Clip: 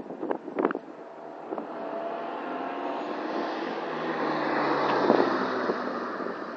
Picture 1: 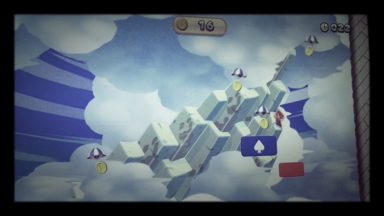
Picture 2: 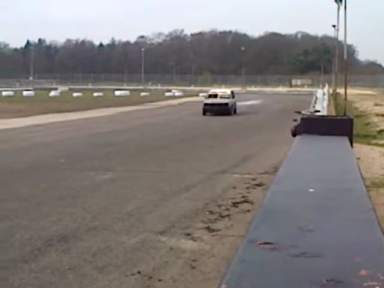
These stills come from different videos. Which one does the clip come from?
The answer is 2